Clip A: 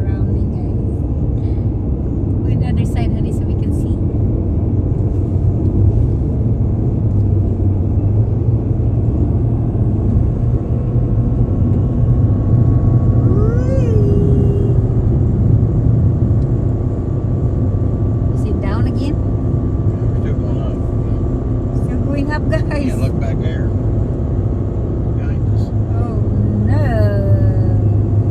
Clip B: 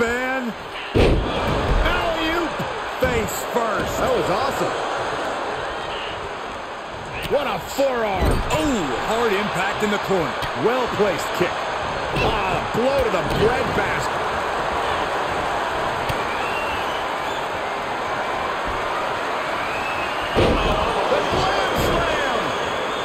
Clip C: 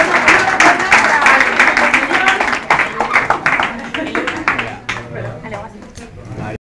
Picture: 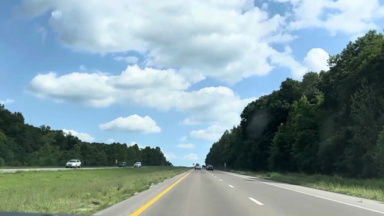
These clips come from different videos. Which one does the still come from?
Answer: A